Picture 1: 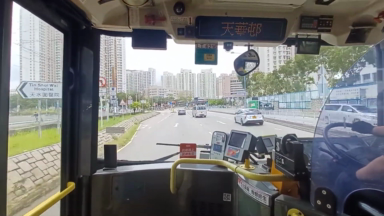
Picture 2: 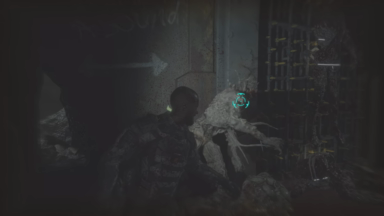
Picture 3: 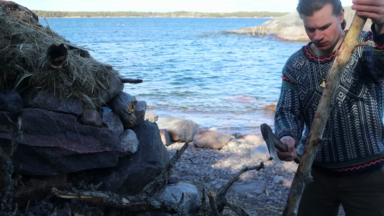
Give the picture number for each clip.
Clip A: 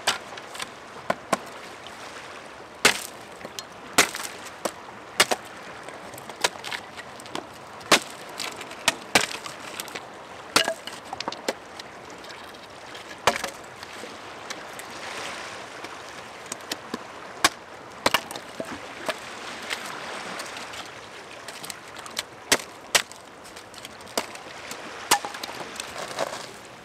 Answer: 3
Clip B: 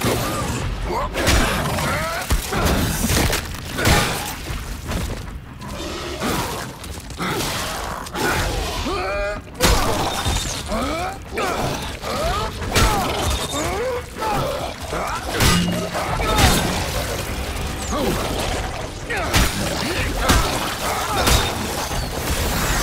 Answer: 2